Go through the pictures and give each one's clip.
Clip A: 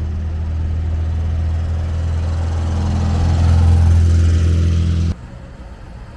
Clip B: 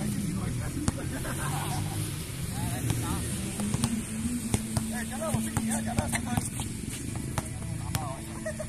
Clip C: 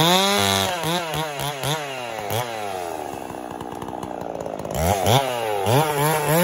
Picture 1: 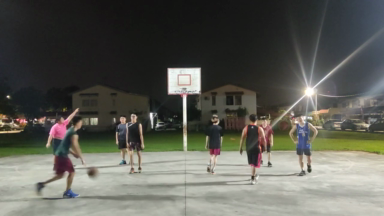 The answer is B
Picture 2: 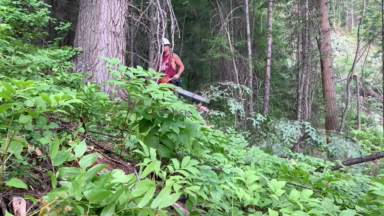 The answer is C